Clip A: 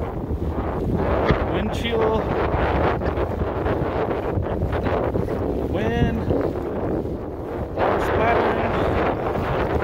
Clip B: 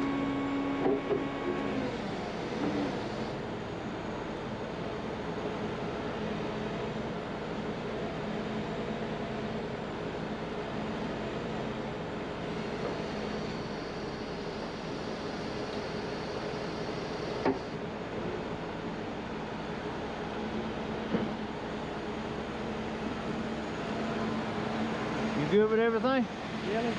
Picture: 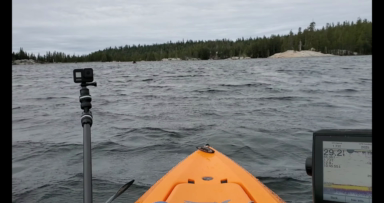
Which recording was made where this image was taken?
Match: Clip A